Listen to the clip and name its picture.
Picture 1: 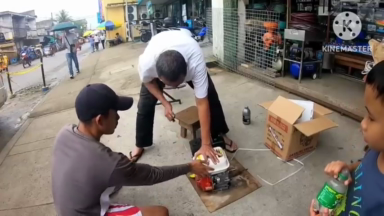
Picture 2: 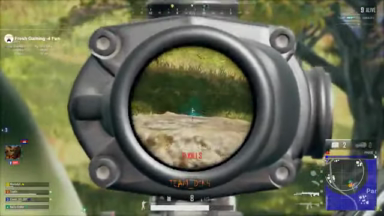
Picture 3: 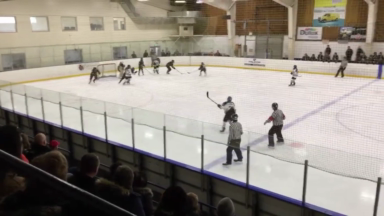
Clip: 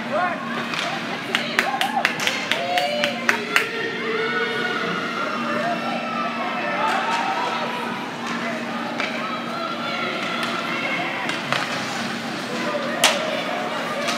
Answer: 3